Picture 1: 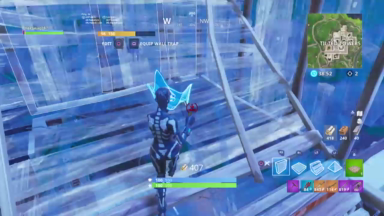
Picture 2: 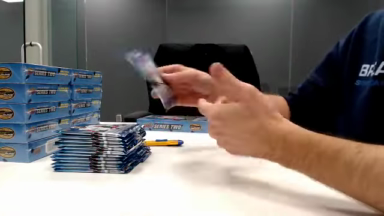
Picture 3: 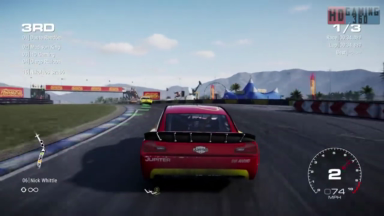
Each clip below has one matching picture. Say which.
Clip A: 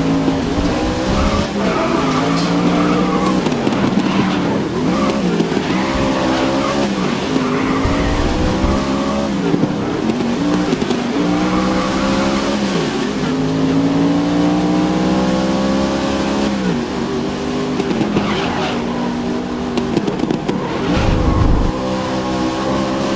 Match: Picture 3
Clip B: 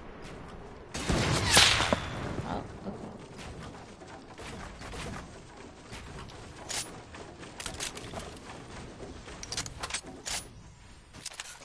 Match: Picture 1